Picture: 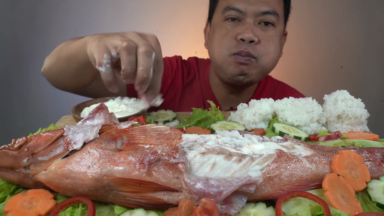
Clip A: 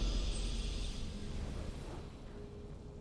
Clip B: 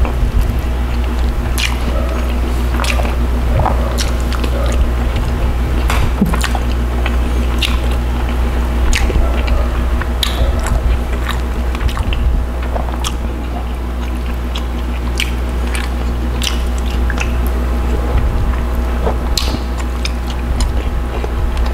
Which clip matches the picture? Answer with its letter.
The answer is B